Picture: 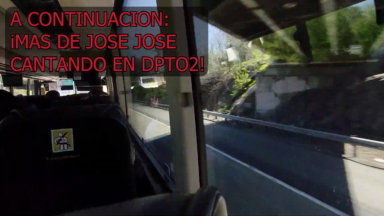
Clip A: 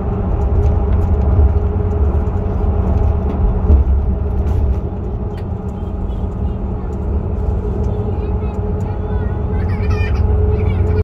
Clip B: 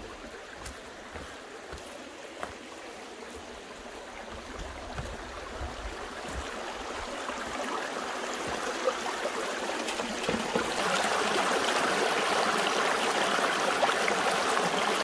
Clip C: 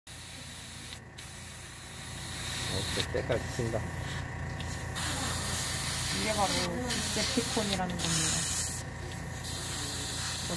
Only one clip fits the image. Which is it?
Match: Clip A